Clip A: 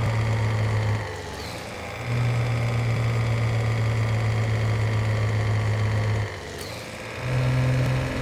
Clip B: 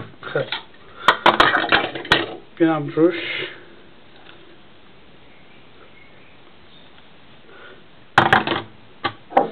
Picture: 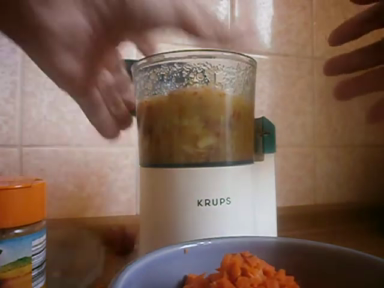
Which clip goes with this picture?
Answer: B